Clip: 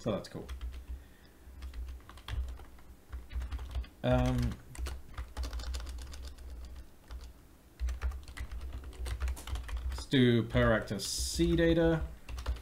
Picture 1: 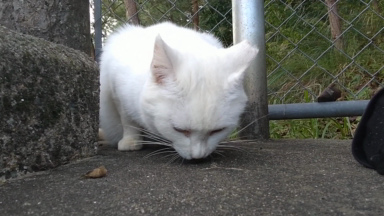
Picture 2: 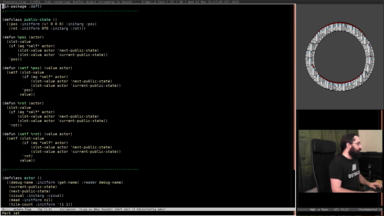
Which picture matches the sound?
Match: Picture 2